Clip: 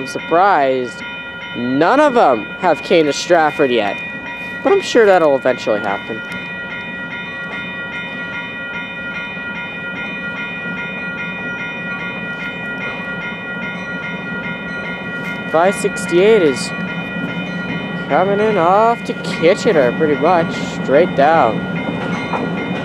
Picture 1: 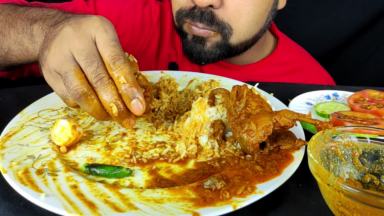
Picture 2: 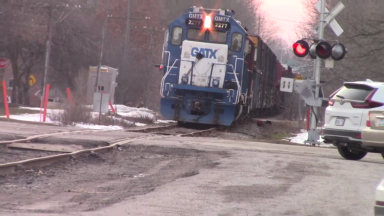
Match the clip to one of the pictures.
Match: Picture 2